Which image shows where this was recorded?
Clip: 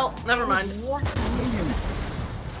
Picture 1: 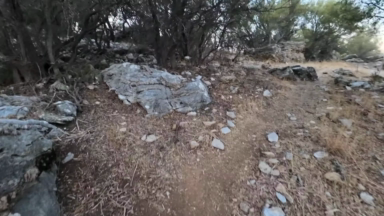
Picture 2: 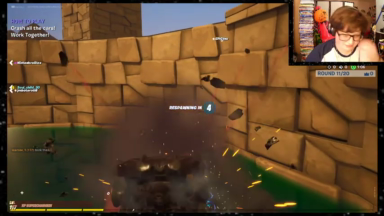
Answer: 2